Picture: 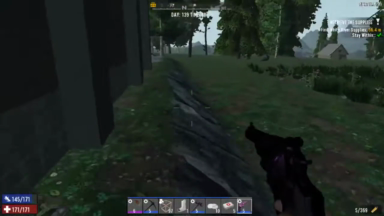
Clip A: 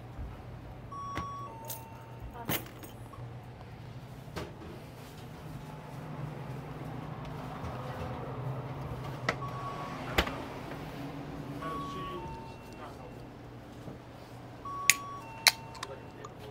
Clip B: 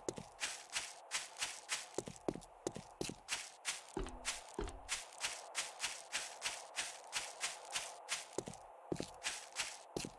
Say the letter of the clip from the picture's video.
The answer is B